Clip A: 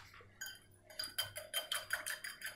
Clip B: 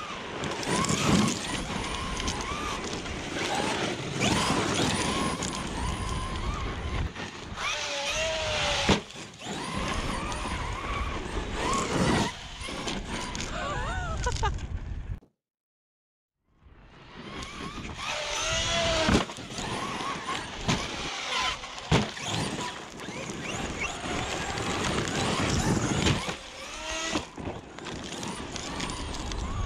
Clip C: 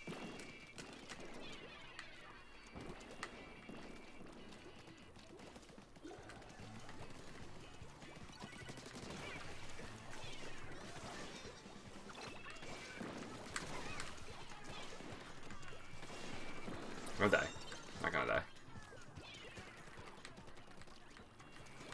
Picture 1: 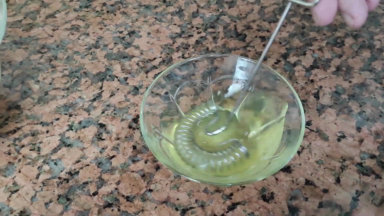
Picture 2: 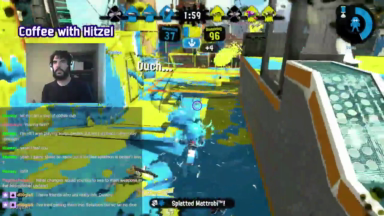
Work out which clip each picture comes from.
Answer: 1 A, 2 C